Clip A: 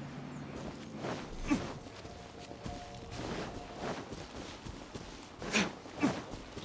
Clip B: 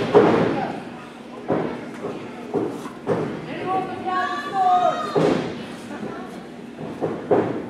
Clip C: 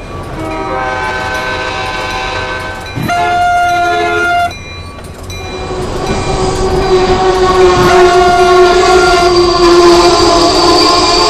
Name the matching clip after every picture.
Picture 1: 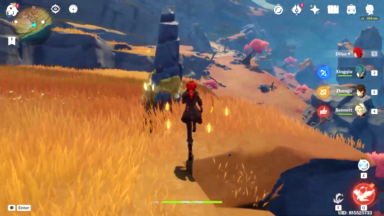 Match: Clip A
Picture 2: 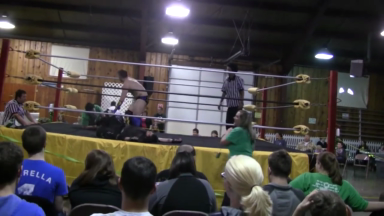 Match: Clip B